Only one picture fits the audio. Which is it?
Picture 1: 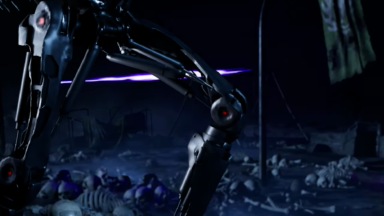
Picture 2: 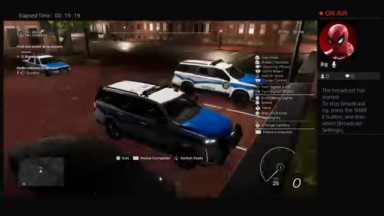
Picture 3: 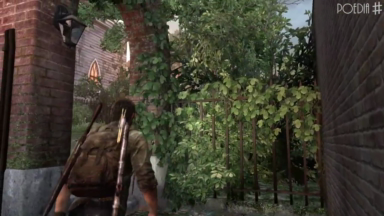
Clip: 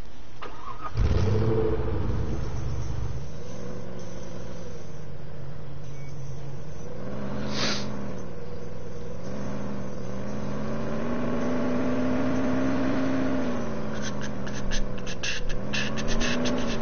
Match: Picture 2